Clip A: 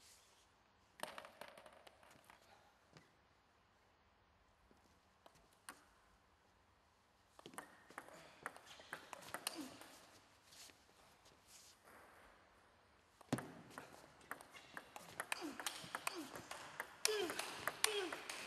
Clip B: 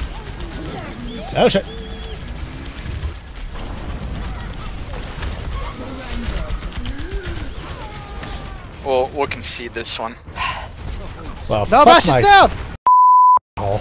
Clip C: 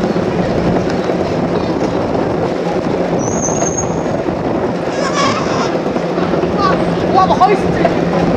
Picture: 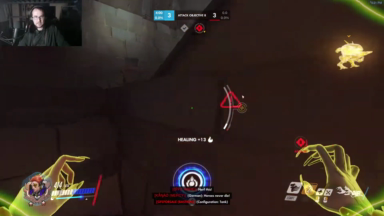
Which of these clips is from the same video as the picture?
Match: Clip B